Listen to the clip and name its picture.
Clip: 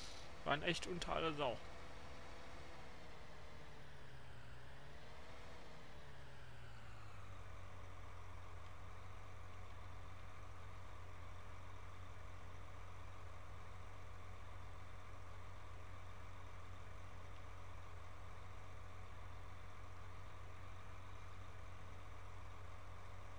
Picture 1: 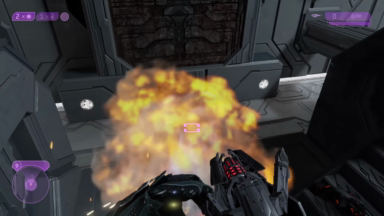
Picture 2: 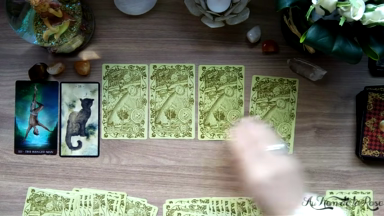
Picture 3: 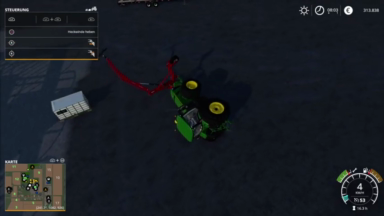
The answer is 3